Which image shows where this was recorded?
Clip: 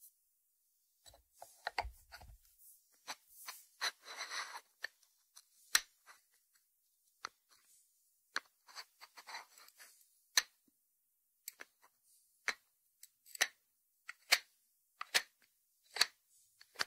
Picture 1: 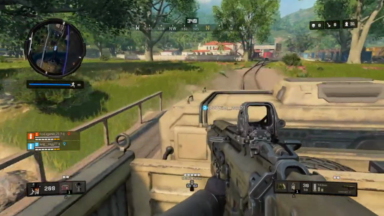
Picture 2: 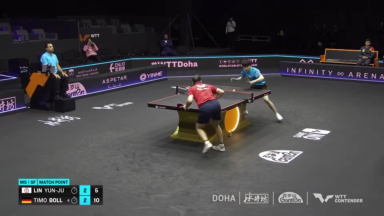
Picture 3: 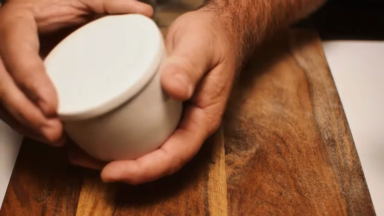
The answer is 3